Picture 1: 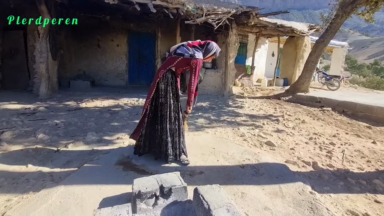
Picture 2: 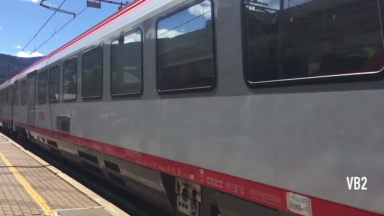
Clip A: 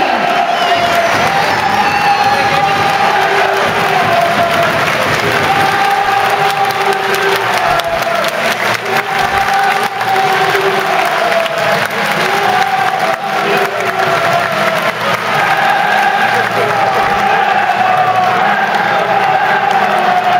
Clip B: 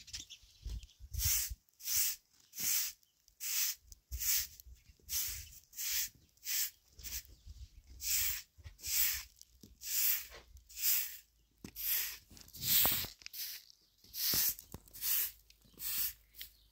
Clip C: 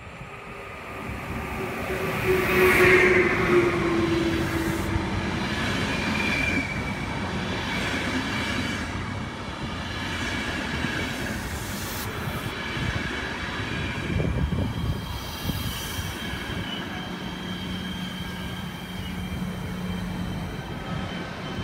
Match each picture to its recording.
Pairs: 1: B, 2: C